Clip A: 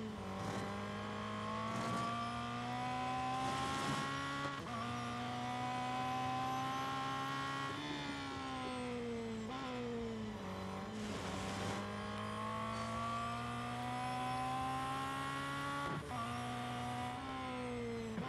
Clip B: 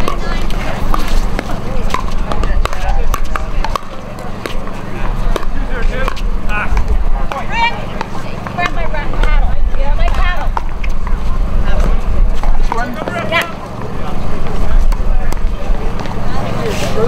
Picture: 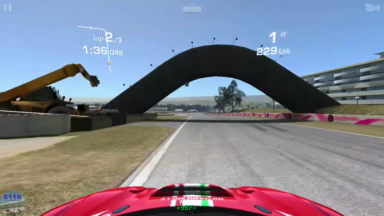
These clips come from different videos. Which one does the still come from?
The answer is A